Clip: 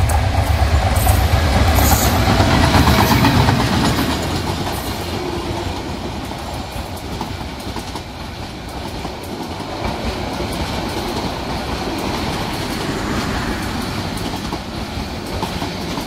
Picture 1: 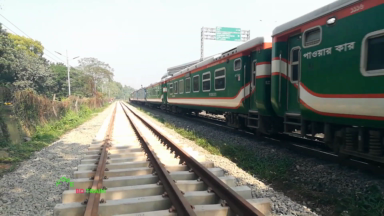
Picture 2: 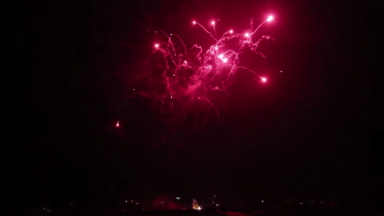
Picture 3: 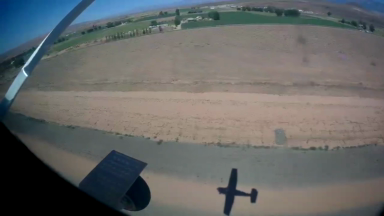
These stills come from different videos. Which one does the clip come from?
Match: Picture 1